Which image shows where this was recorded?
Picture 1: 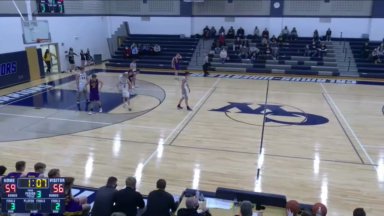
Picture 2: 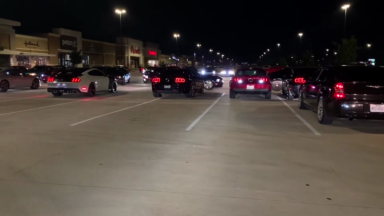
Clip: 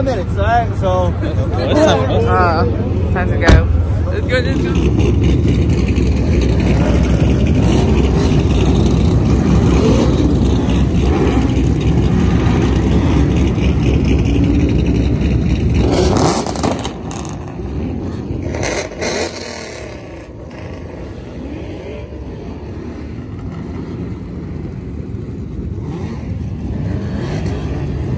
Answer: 2